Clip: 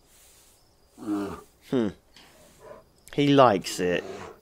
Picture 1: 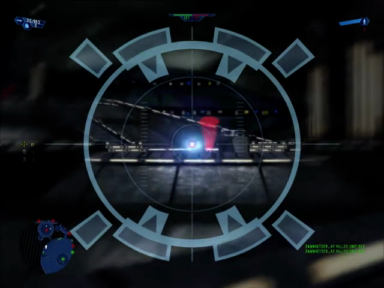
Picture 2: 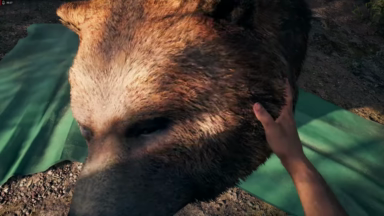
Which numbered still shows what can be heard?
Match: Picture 2